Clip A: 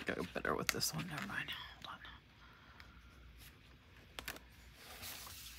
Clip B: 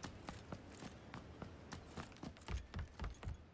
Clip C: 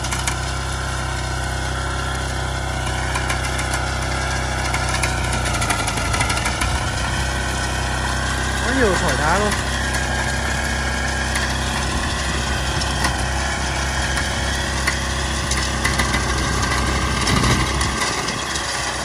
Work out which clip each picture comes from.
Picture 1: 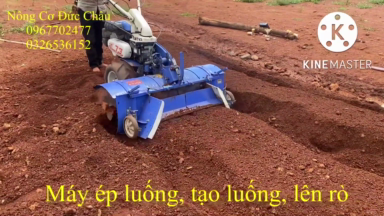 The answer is C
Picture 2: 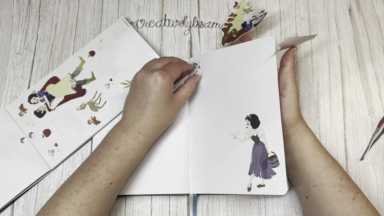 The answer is A